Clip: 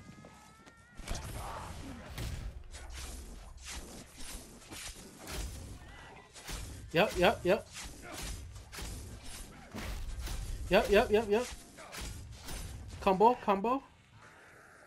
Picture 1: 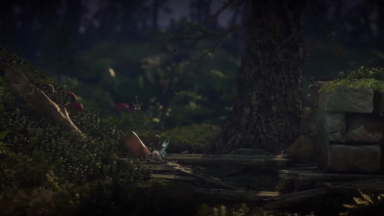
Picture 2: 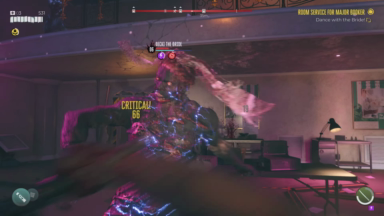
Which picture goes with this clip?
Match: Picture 2